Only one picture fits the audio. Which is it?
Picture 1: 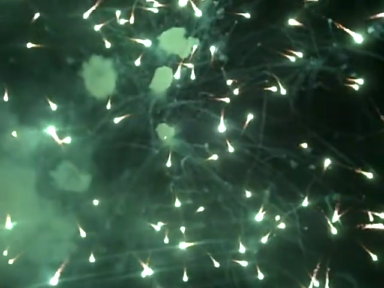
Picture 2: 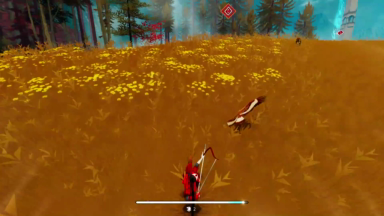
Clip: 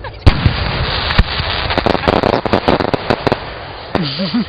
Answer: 1